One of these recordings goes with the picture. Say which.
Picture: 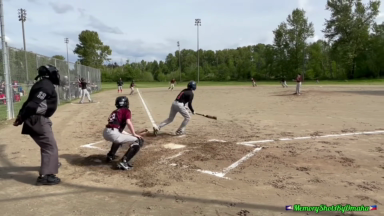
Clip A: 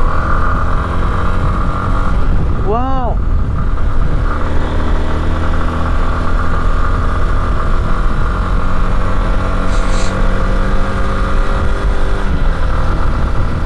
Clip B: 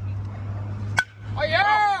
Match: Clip B